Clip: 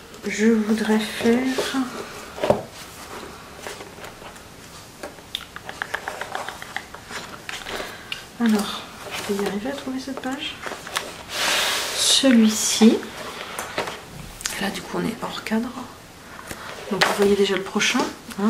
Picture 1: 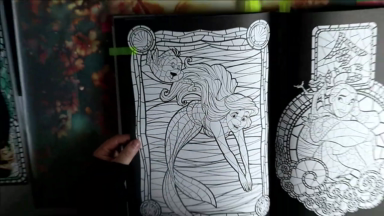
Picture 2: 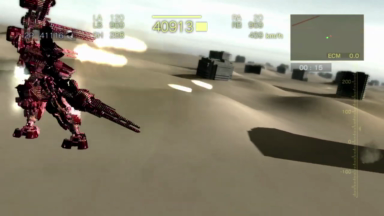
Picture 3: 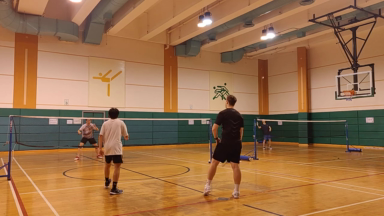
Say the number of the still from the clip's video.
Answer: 1